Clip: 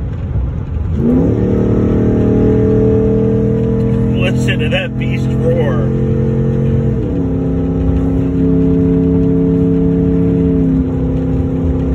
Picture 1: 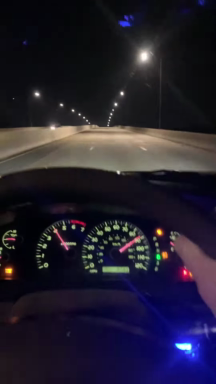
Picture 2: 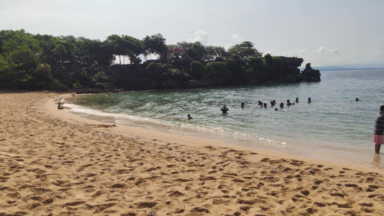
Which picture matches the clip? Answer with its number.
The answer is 1